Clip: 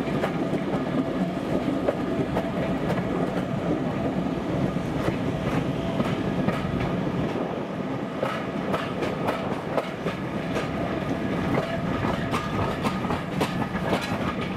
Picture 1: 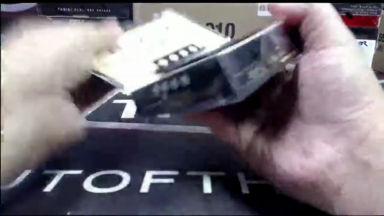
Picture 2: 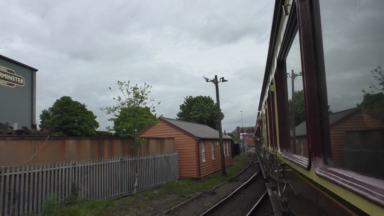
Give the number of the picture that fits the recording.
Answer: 2